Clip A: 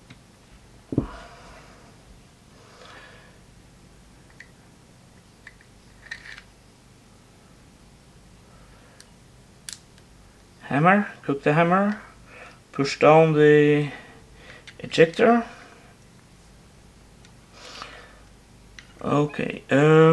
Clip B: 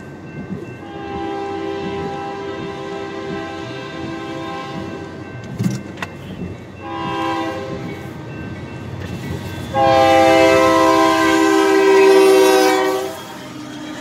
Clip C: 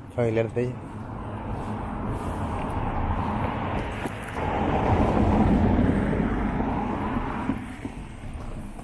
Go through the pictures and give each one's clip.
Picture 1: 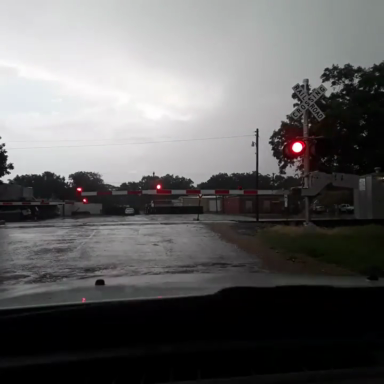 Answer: B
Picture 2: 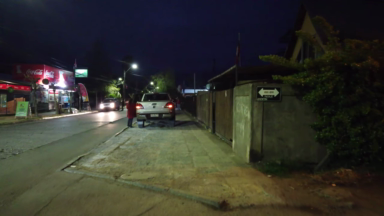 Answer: C